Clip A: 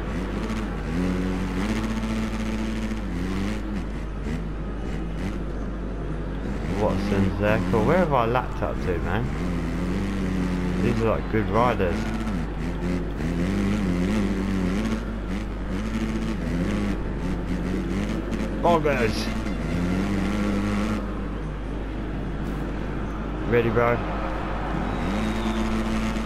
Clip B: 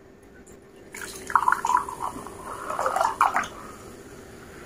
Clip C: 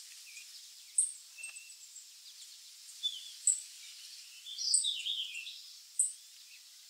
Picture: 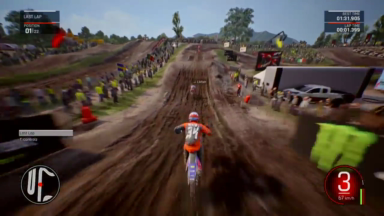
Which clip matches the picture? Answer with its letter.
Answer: A